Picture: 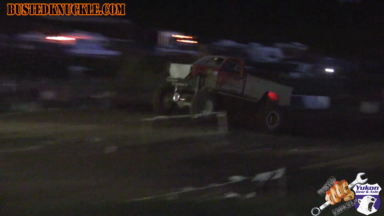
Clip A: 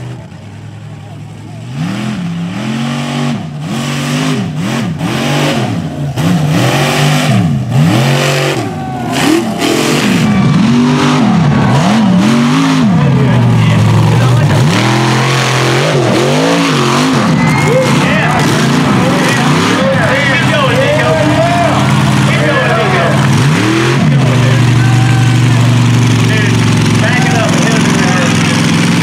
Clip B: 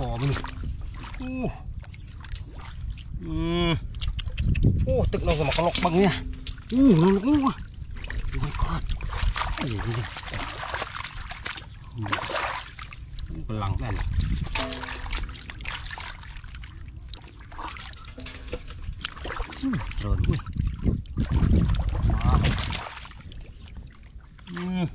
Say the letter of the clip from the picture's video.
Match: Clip A